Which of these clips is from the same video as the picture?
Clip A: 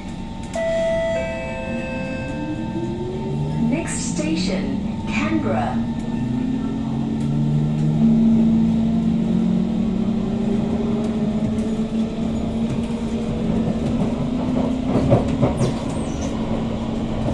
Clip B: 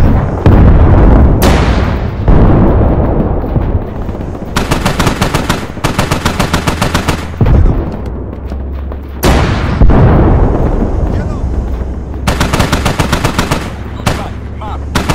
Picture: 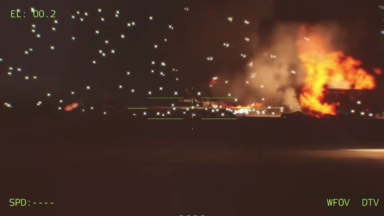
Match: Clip B